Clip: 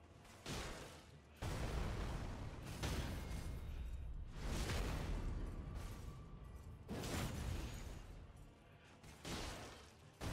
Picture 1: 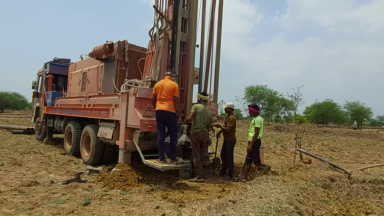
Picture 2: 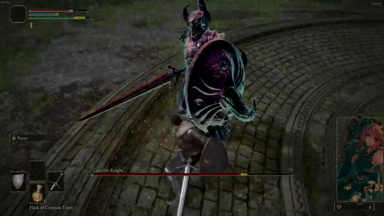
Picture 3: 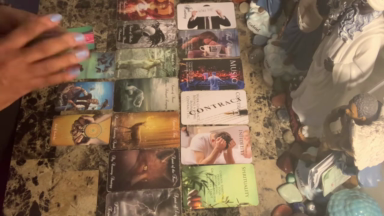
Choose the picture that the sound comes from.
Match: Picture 2